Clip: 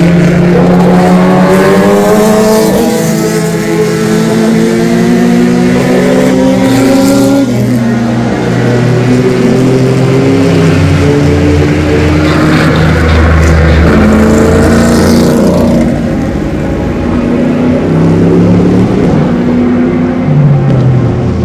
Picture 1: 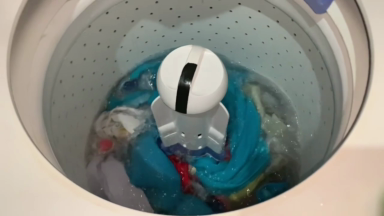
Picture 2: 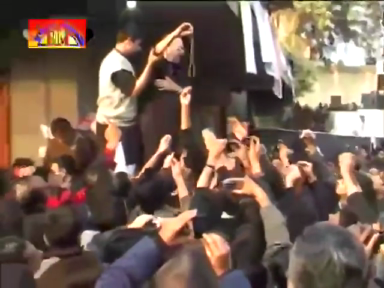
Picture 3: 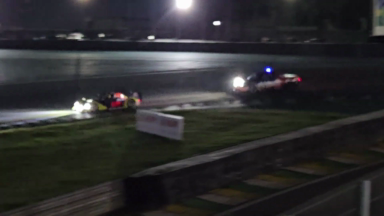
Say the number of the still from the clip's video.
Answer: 3